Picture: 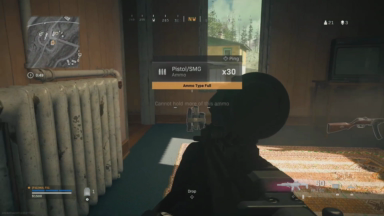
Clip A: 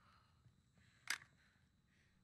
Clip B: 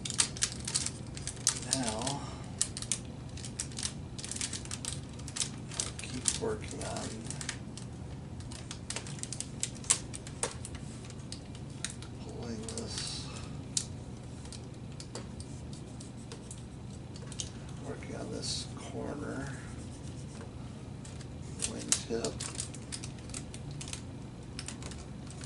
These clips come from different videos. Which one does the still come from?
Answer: A